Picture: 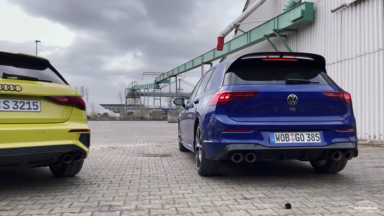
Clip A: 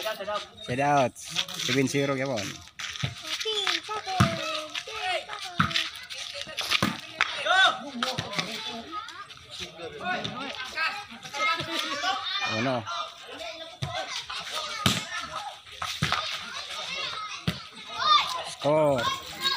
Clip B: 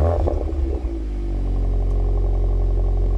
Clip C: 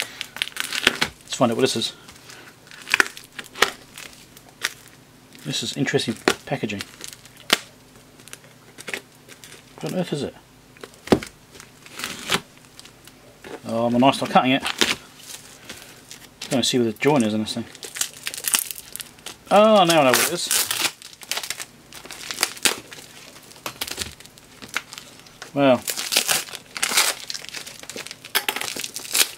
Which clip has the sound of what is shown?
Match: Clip B